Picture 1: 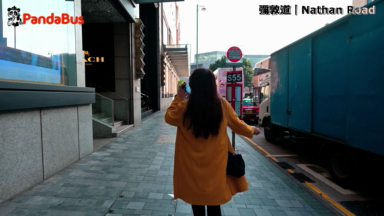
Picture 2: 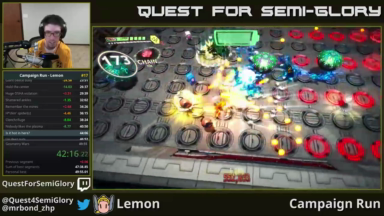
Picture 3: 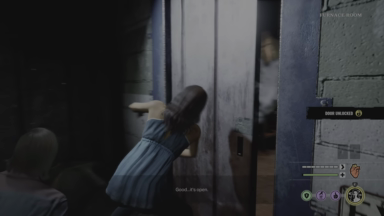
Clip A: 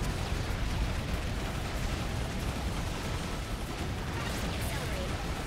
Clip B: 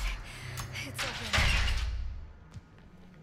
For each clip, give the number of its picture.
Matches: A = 2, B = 3